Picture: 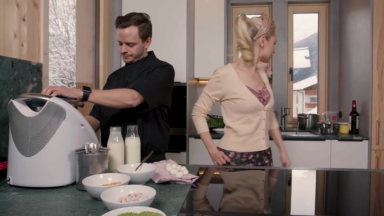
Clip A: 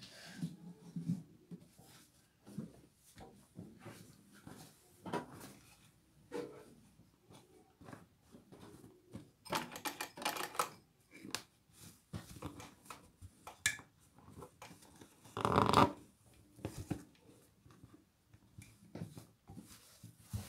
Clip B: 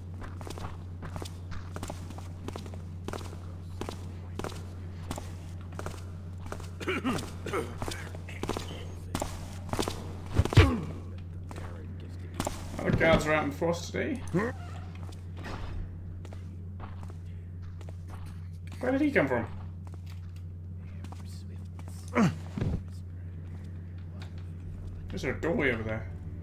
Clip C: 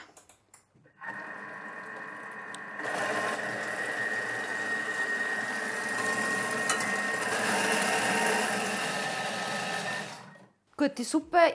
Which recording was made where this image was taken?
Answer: C